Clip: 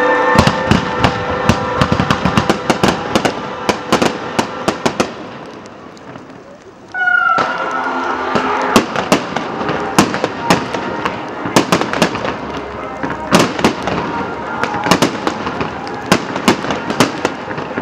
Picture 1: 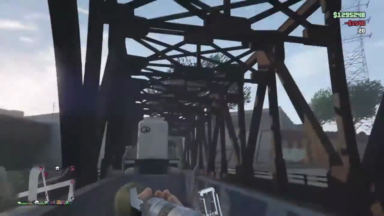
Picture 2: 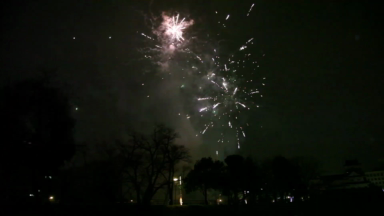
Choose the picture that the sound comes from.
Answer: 2